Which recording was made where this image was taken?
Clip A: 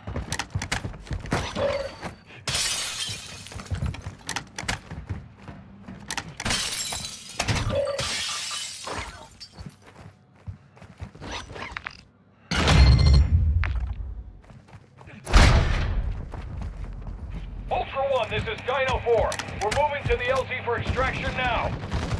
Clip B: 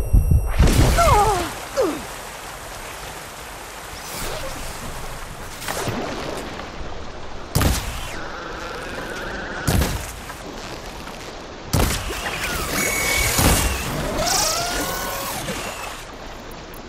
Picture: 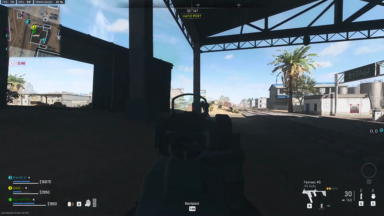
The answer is A